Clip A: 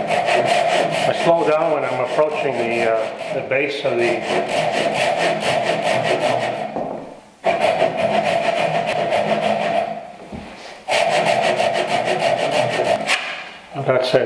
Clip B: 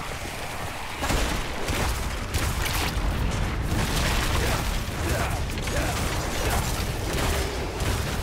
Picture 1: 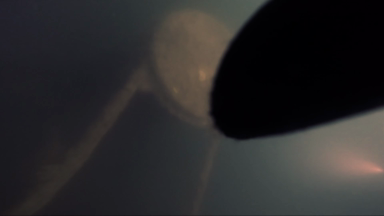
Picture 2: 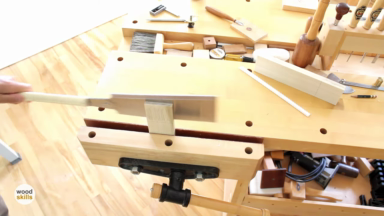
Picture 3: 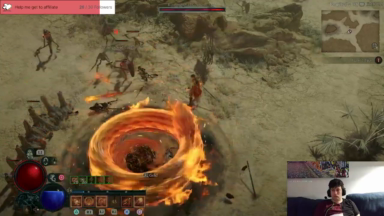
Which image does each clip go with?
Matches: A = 2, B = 3